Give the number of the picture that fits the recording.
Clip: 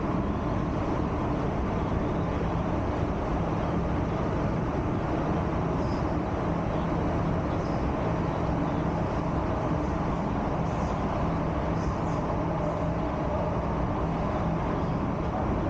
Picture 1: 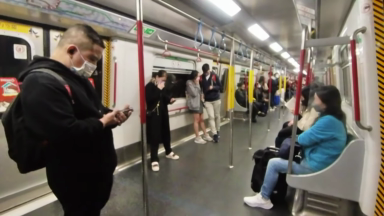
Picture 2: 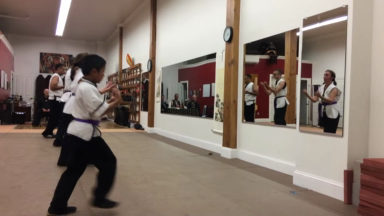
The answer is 1